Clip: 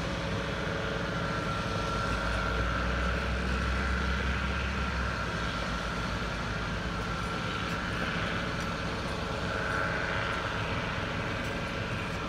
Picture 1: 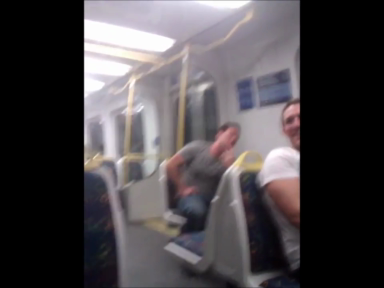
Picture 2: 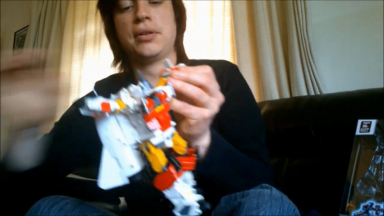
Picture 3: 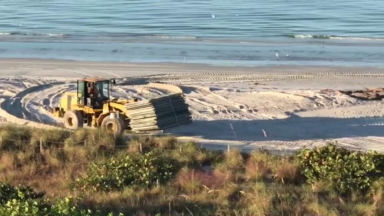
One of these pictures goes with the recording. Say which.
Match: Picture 3